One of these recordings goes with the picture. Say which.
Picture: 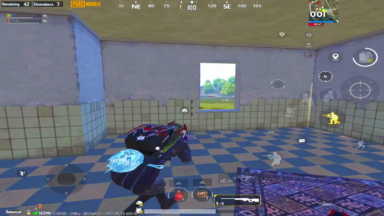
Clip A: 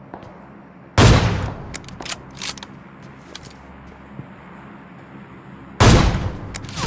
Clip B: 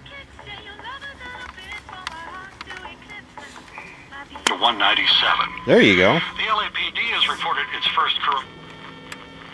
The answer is A